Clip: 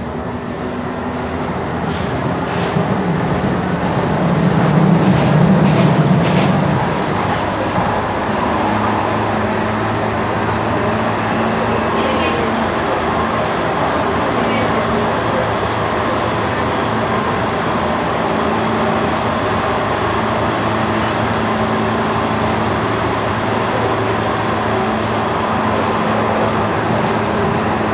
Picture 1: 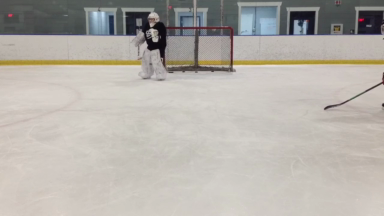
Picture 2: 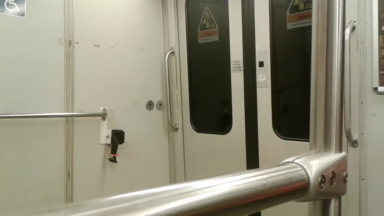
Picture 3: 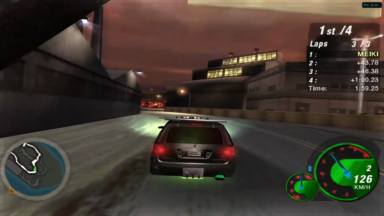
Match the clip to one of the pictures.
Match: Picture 2